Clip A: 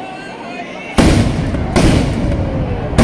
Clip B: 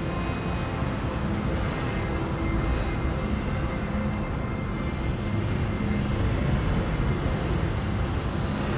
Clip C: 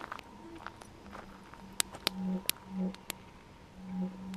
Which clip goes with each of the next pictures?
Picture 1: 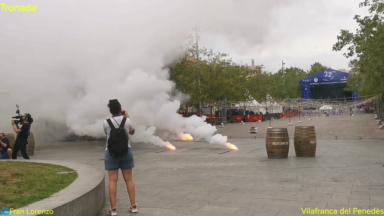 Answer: A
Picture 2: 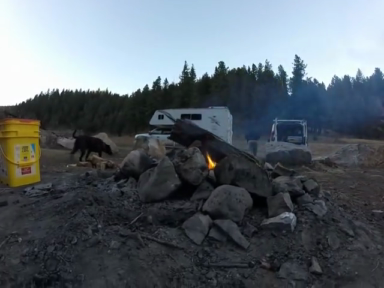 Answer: C